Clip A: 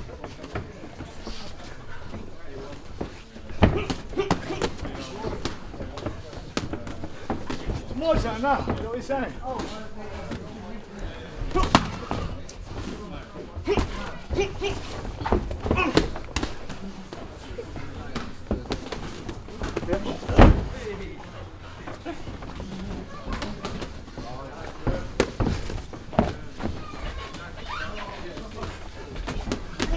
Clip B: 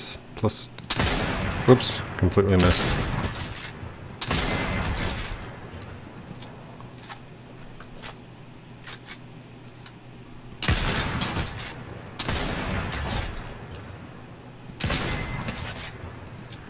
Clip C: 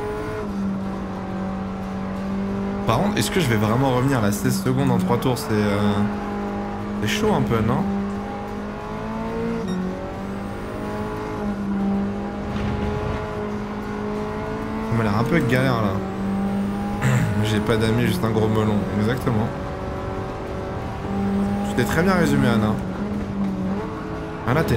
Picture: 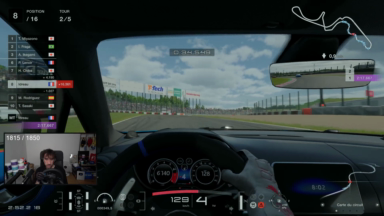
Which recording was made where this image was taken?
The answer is C